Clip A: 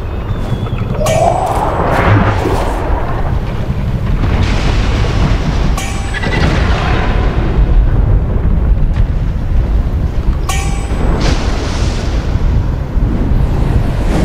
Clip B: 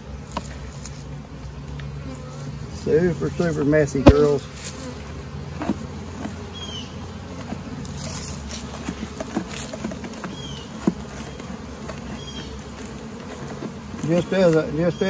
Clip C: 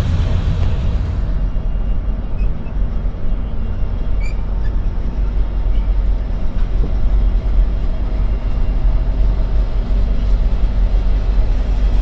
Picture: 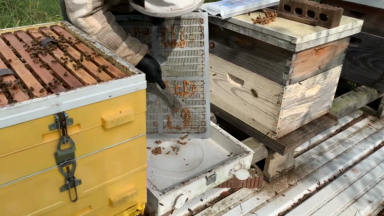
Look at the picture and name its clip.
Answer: B